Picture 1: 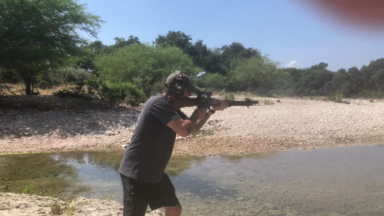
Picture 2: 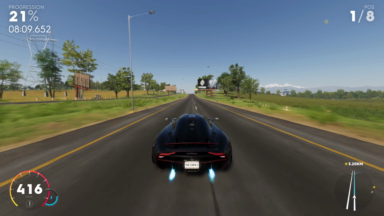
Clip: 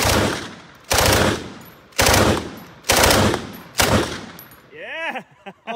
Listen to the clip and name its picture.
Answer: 1